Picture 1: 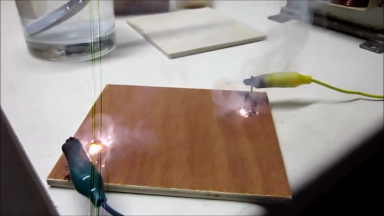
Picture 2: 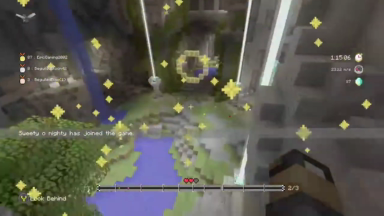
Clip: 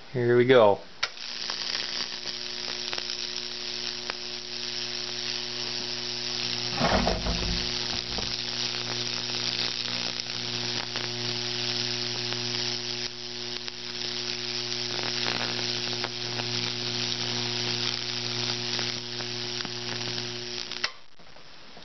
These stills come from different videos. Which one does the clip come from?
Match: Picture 1